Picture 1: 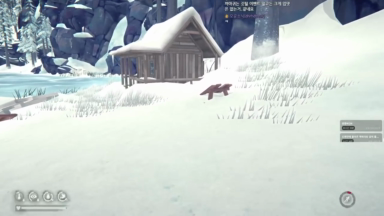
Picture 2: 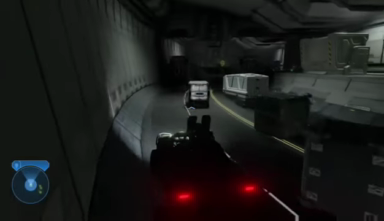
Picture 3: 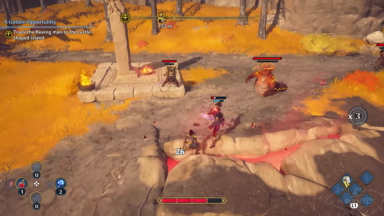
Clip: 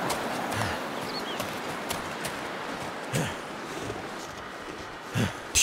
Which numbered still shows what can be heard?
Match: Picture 1